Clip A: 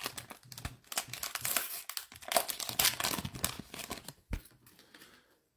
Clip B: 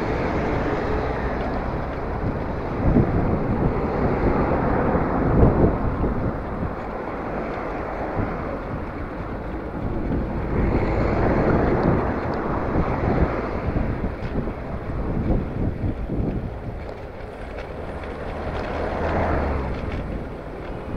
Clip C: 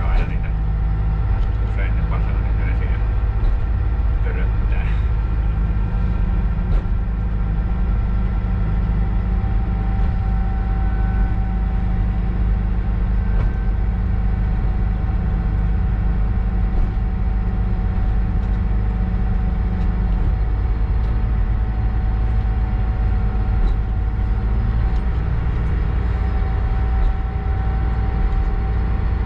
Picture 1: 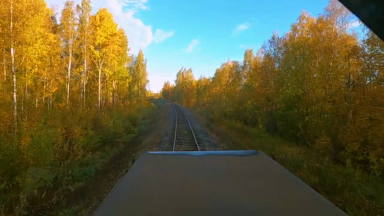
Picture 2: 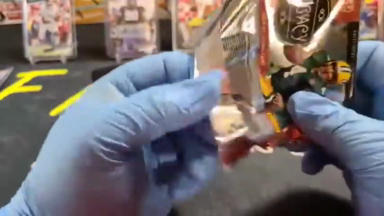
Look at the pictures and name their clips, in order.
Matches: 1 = C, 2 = A